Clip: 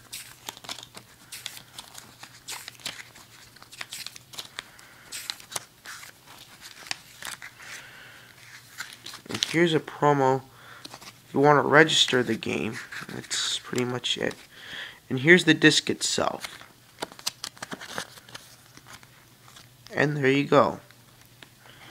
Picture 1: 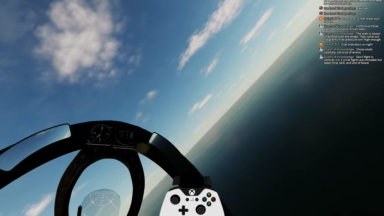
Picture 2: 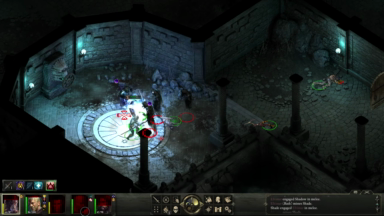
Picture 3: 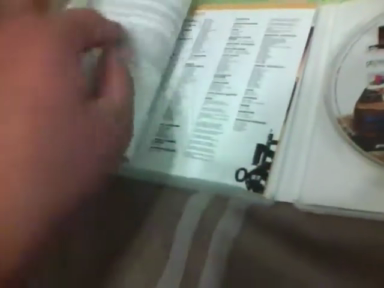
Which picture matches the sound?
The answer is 3